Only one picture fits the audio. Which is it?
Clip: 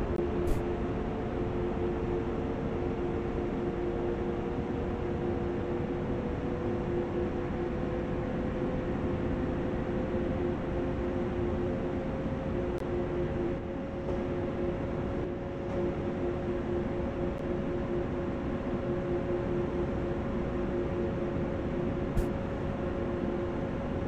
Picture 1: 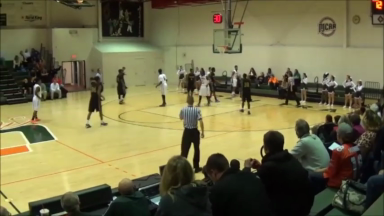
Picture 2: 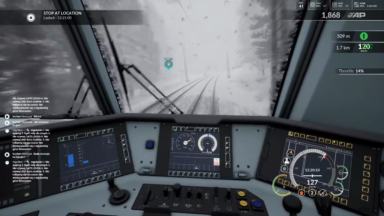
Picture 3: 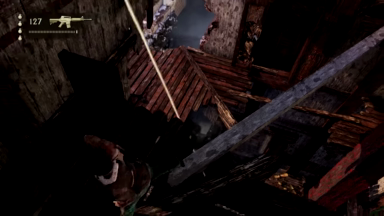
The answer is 2